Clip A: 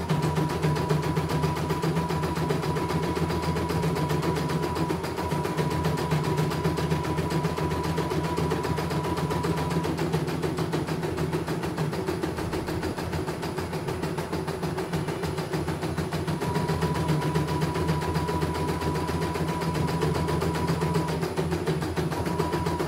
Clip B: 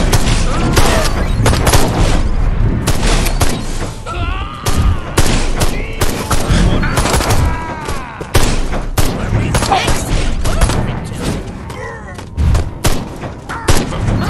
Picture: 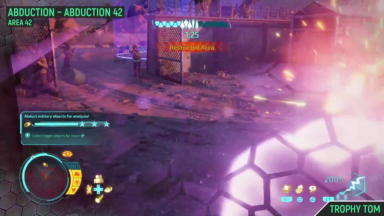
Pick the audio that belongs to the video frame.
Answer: B